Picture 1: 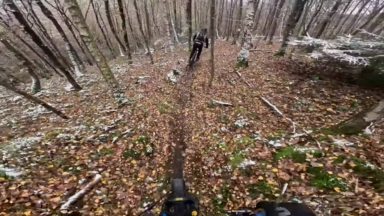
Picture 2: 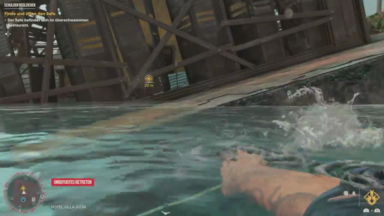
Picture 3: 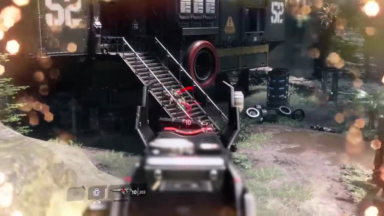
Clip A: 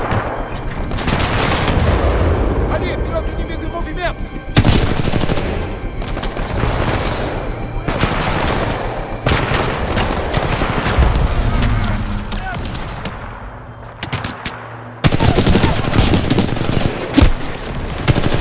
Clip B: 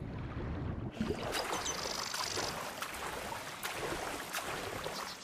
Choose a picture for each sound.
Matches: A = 3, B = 2